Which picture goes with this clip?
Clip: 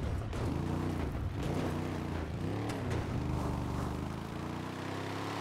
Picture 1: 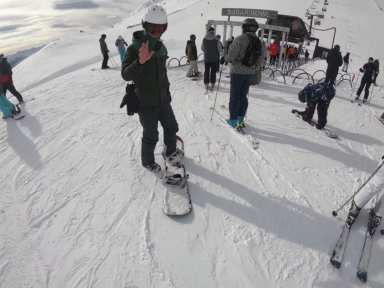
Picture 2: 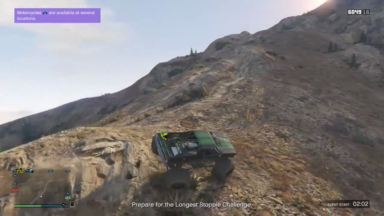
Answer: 2